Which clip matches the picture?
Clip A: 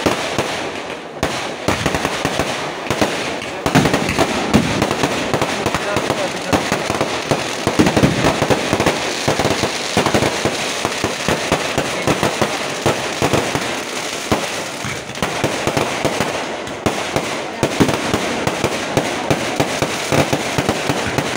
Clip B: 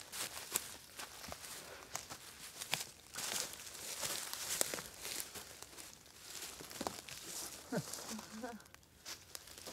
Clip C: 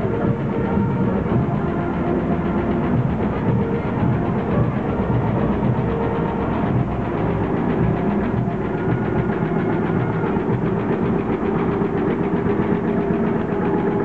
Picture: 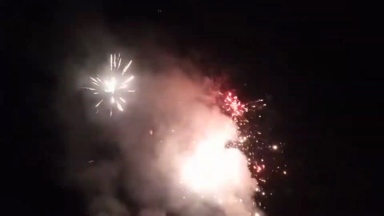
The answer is A